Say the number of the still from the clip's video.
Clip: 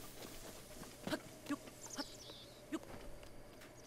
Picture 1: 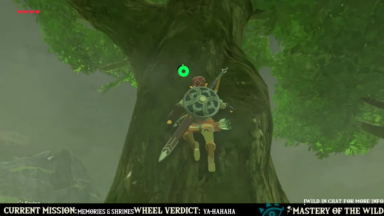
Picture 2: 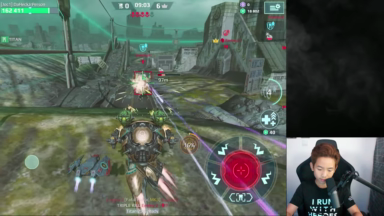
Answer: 1